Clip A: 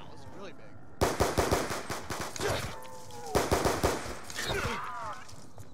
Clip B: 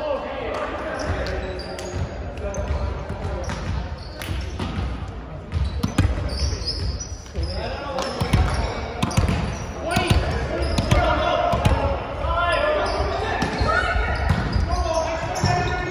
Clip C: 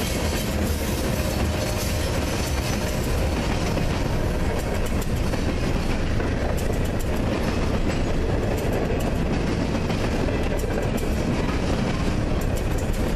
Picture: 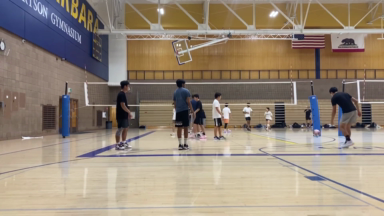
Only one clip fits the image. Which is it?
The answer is B